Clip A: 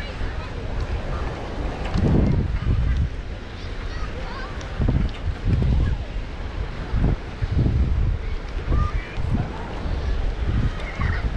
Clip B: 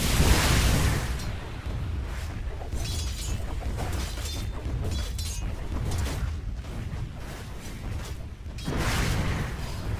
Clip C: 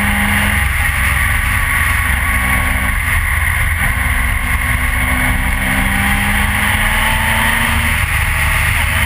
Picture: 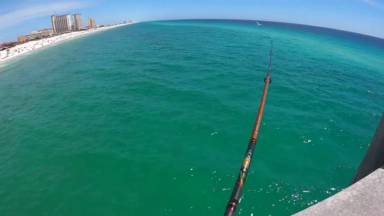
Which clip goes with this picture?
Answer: A